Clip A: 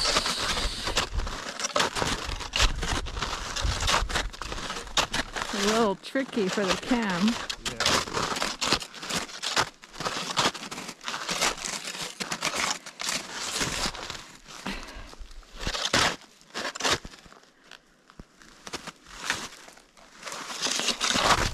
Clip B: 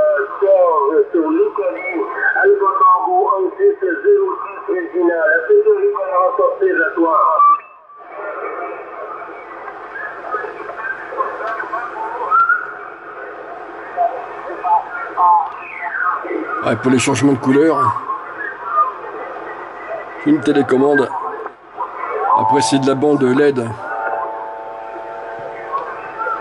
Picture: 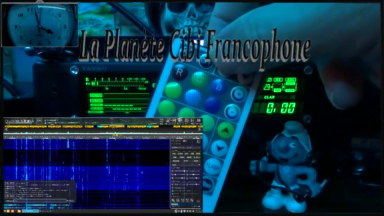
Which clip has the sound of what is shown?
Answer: B